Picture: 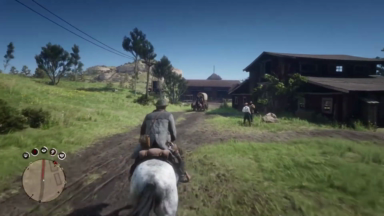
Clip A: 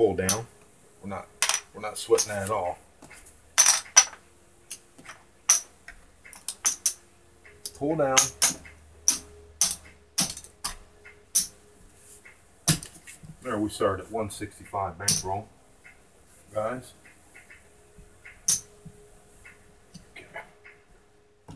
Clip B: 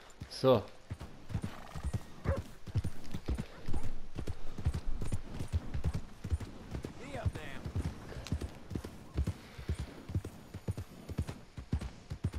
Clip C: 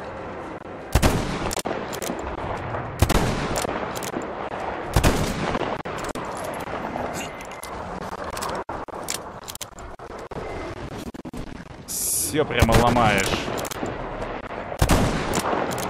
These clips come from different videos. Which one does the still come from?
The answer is B